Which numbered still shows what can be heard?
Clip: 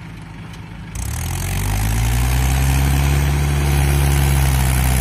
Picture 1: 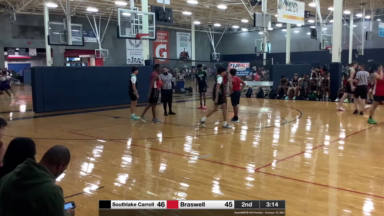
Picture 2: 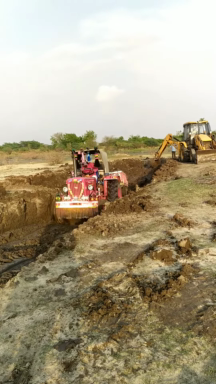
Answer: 2